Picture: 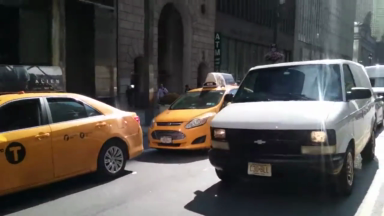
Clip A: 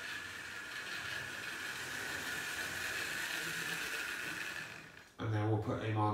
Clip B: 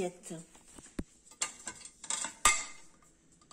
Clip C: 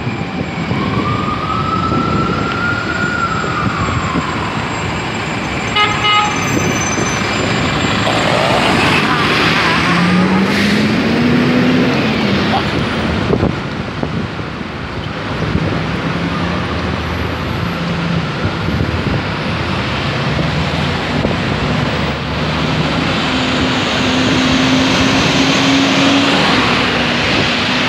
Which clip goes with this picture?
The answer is C